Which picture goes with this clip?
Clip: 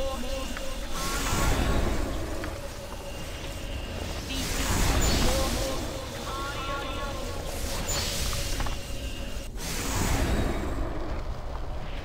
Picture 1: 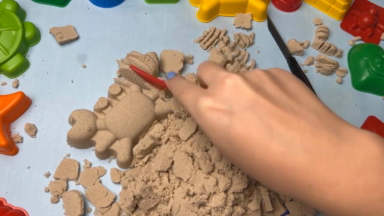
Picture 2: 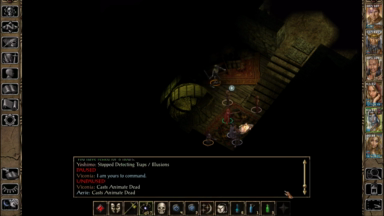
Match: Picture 2